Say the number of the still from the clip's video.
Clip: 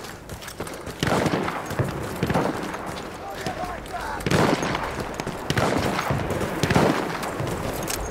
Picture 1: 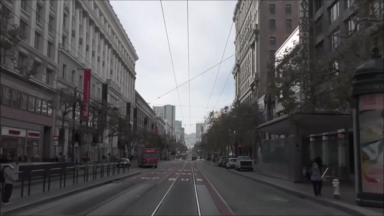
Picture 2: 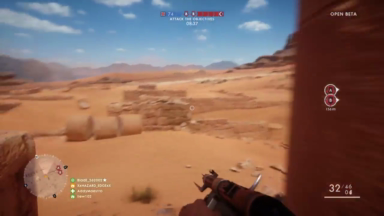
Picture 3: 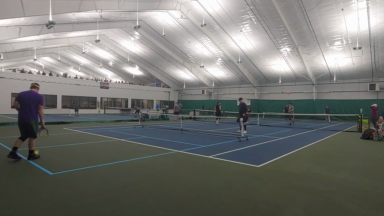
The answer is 2